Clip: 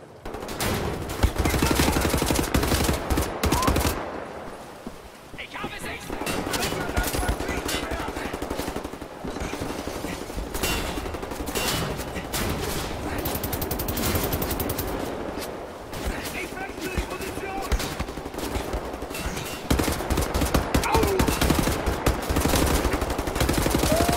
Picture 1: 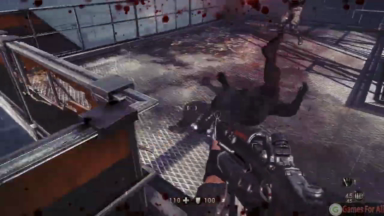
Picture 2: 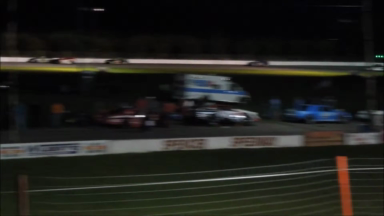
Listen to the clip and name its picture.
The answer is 1